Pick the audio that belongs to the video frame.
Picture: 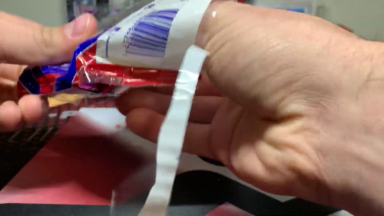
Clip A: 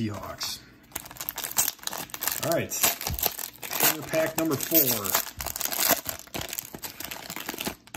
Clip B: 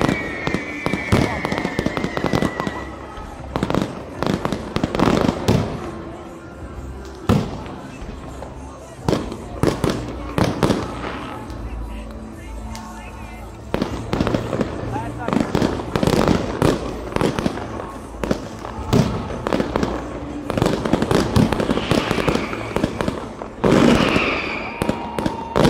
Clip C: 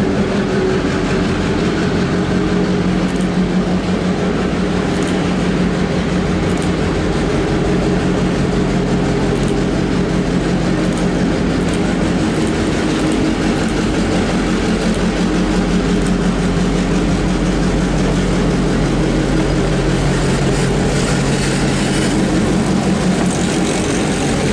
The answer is A